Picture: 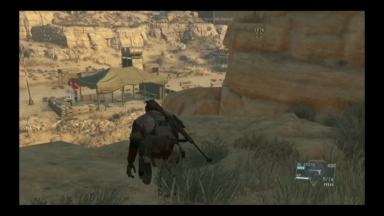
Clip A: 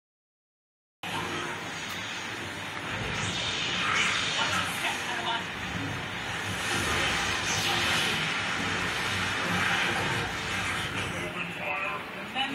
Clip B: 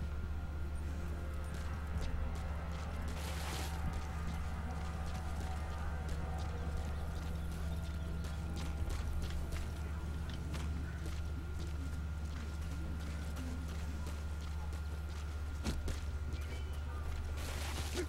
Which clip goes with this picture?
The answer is B